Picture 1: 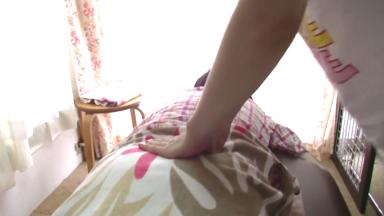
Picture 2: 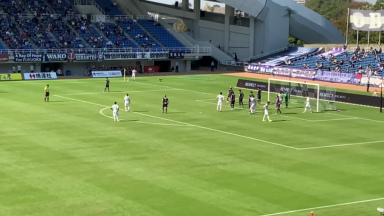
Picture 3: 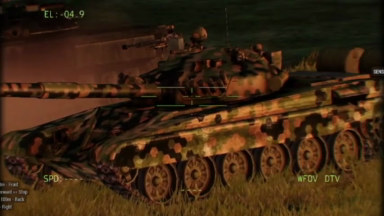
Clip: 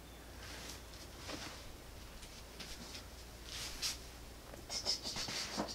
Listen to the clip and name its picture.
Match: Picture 1